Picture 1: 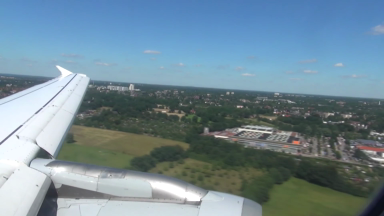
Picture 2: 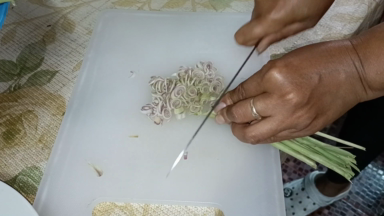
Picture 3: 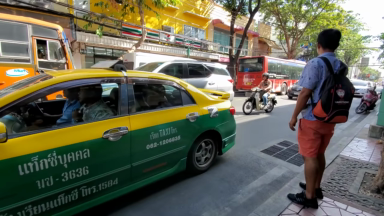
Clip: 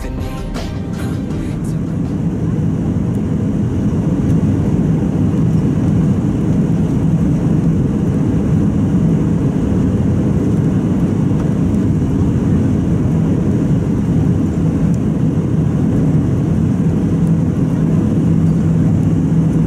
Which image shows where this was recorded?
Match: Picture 1